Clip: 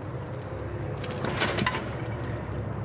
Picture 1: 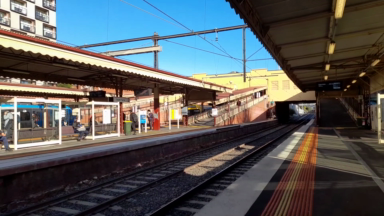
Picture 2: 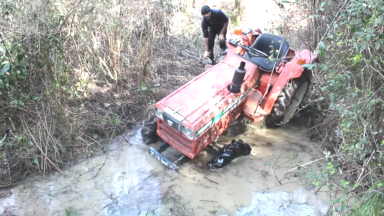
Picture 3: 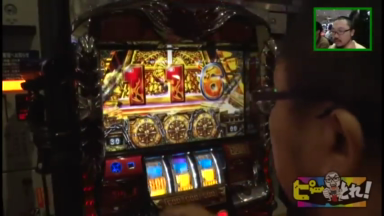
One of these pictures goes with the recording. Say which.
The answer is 2